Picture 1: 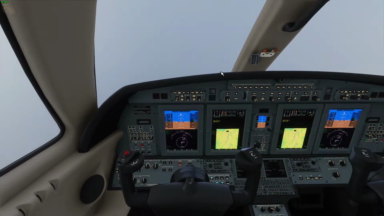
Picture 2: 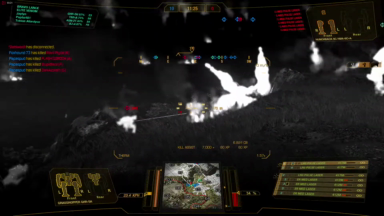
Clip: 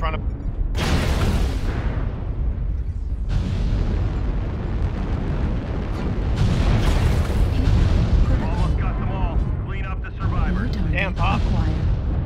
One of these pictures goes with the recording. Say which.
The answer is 2